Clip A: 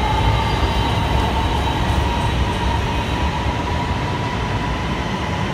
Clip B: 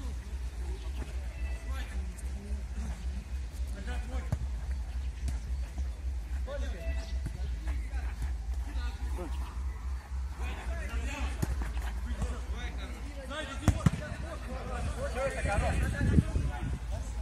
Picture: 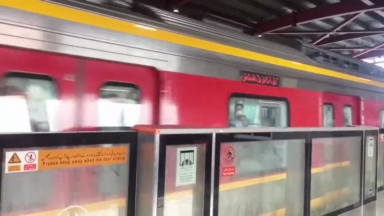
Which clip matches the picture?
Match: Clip A